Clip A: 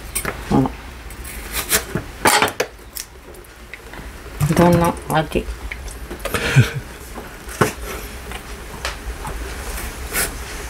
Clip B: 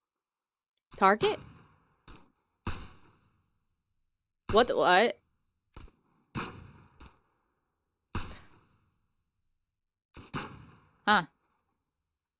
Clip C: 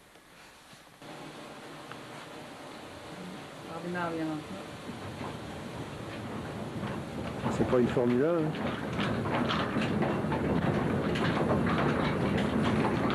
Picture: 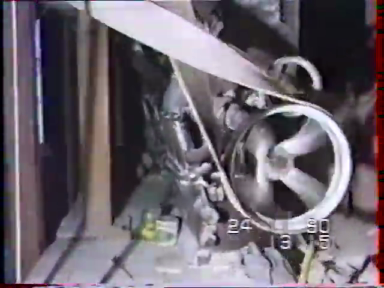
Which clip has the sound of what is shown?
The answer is C